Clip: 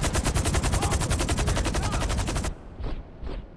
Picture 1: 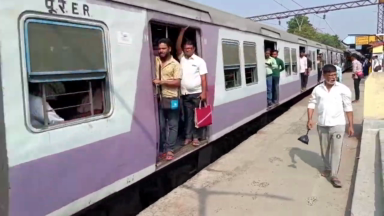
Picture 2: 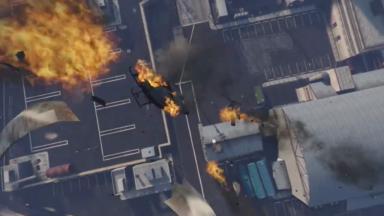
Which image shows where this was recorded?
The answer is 2